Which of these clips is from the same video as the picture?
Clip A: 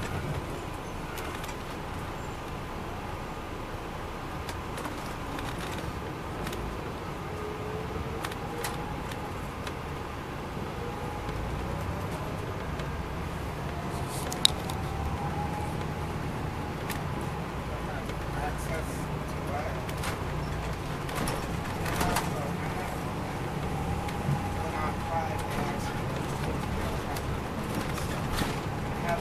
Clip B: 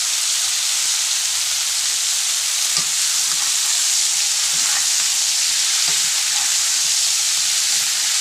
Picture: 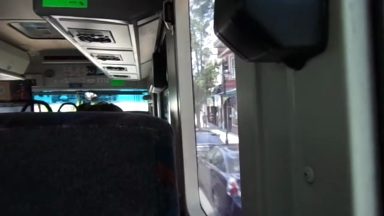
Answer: A